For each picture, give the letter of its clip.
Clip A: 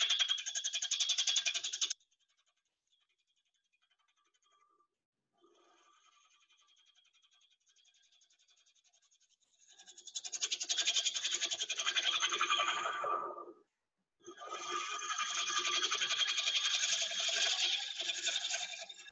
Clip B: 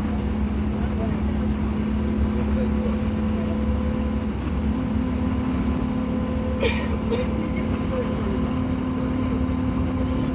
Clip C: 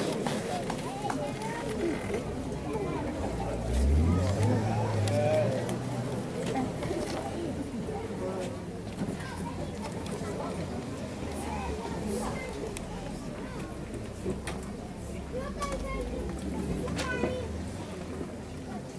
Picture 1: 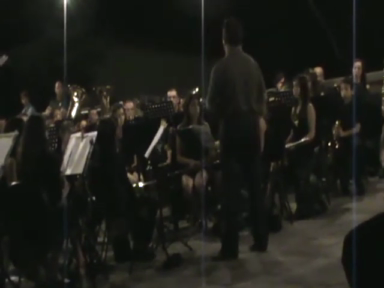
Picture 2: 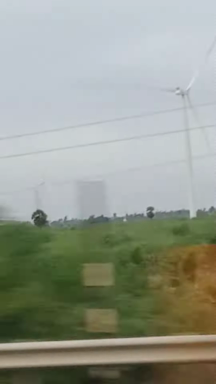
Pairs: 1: C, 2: B